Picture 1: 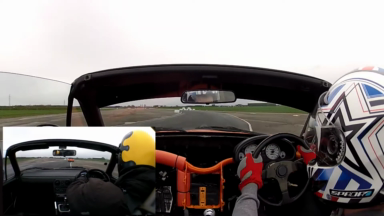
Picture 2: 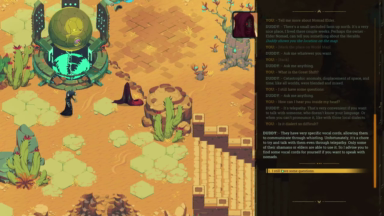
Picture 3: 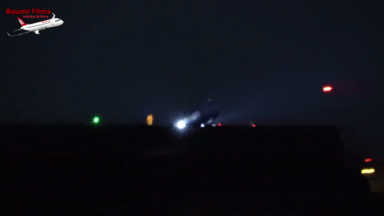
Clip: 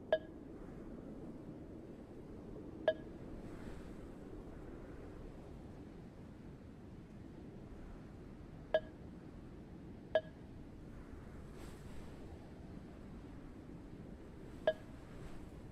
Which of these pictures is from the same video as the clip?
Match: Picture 2